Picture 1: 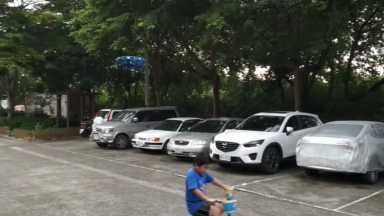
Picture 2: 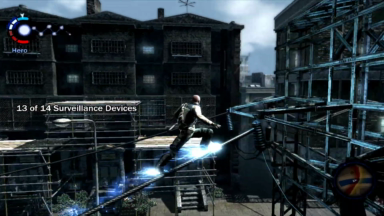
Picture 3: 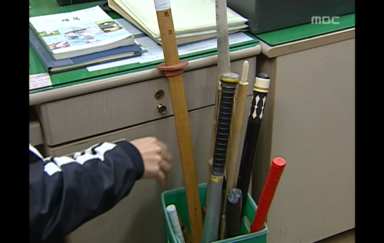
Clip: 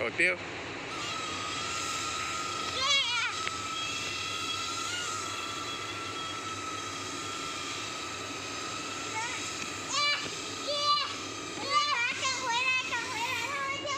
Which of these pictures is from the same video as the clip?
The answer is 1